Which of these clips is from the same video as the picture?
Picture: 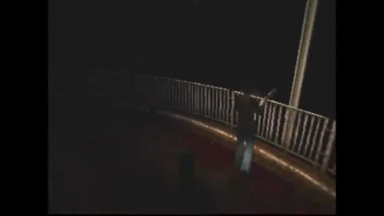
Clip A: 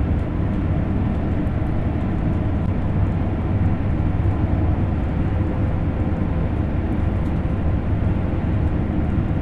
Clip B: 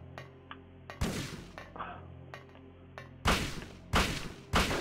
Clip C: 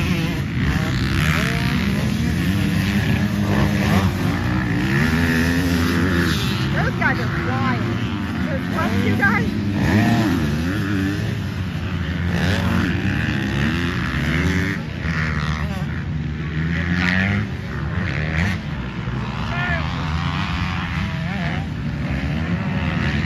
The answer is B